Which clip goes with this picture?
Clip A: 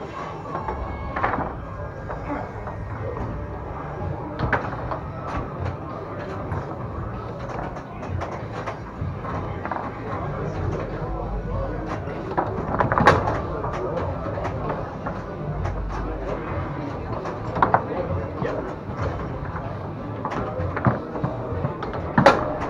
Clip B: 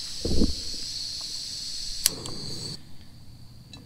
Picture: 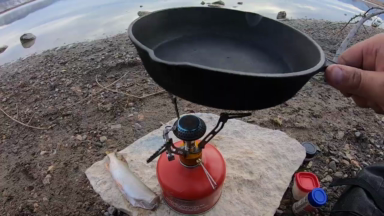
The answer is B